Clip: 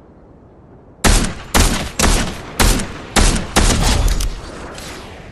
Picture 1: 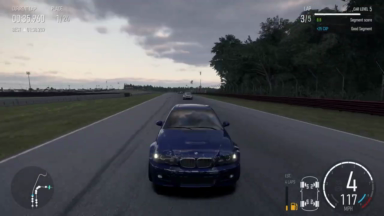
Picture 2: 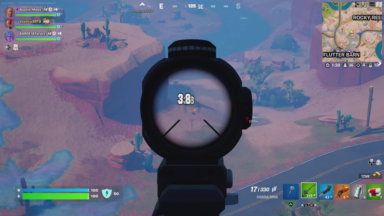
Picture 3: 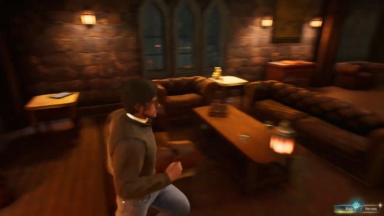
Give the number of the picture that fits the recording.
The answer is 2